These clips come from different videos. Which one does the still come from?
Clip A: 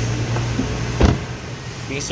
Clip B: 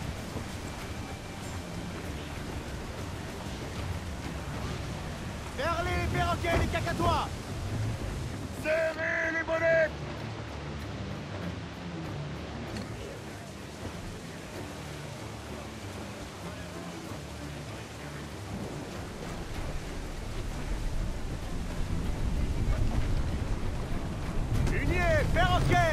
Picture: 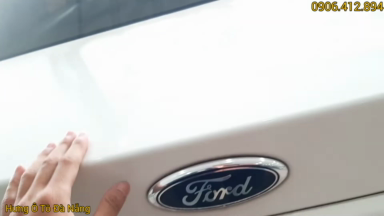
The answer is A